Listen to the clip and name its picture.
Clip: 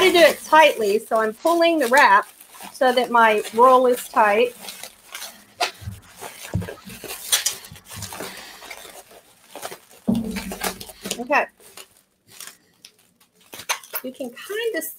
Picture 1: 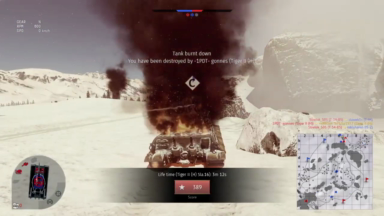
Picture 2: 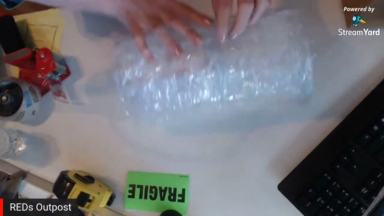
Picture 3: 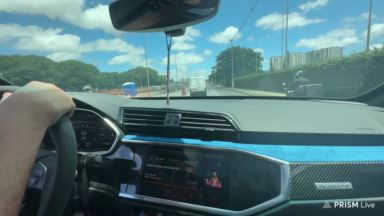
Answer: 2